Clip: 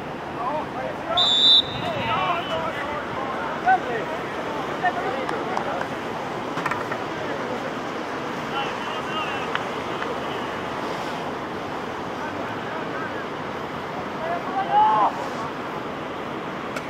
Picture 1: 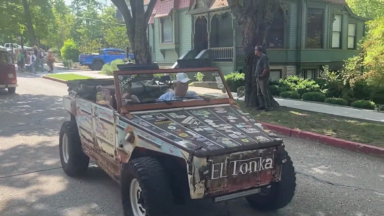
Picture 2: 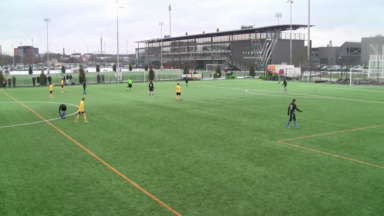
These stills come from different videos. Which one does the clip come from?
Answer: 2